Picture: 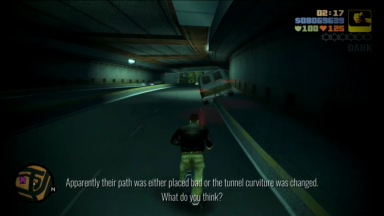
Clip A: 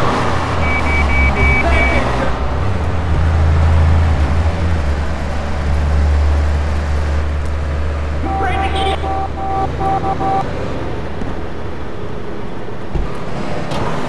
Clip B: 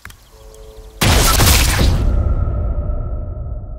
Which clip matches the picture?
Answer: A